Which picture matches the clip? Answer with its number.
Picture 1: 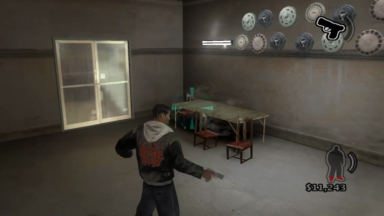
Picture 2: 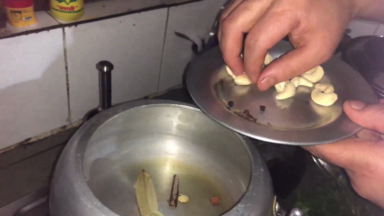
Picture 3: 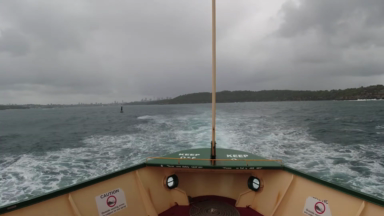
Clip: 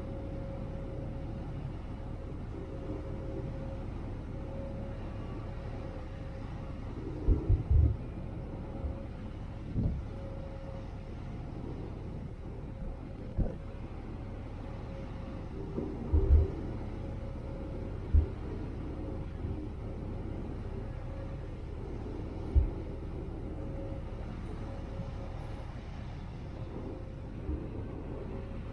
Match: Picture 3